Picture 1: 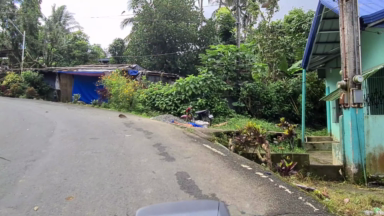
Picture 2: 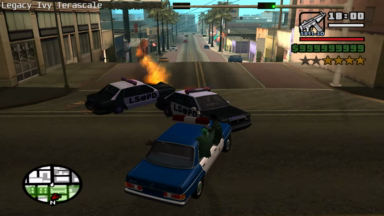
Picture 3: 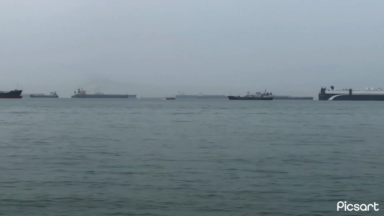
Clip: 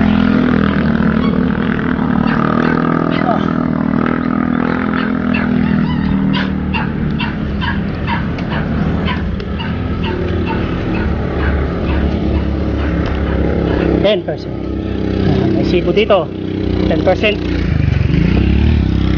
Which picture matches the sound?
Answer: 1